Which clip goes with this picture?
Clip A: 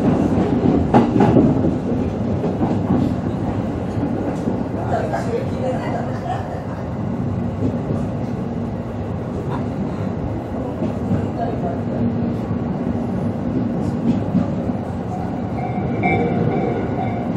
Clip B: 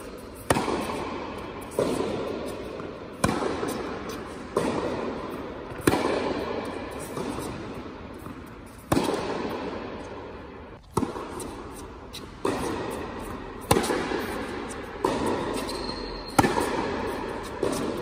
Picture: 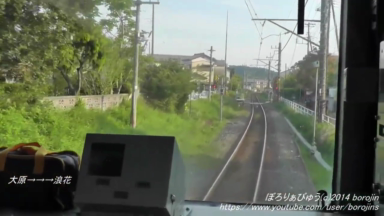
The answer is A